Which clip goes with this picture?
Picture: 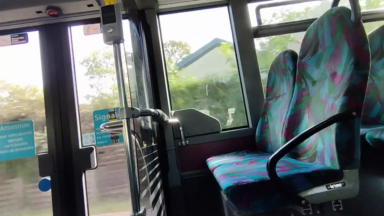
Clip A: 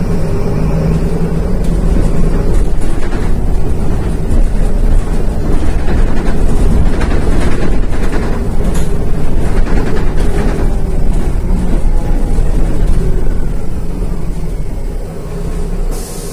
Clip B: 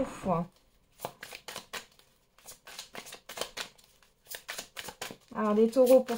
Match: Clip A